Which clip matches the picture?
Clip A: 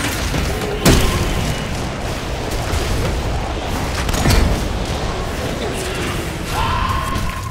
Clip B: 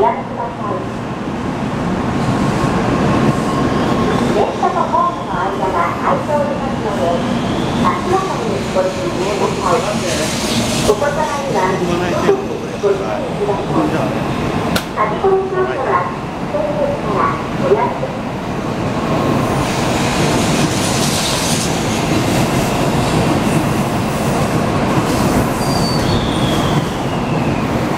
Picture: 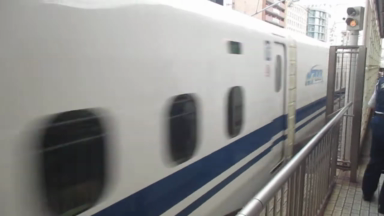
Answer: B